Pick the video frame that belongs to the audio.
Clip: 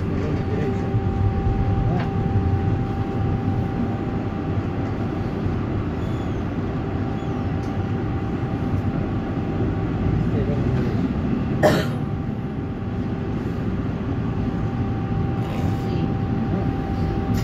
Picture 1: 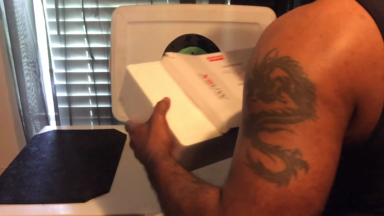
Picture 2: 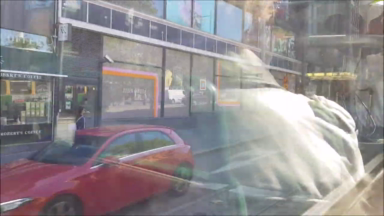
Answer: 2